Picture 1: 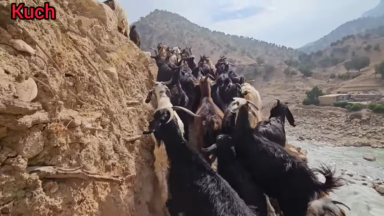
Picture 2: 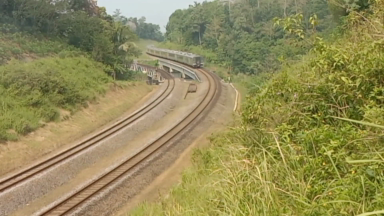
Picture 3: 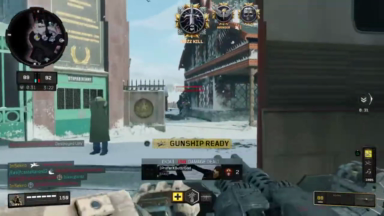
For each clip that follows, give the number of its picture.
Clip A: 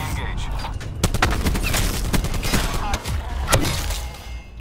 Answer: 3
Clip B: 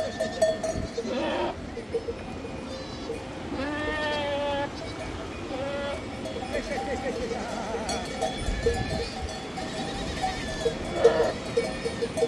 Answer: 1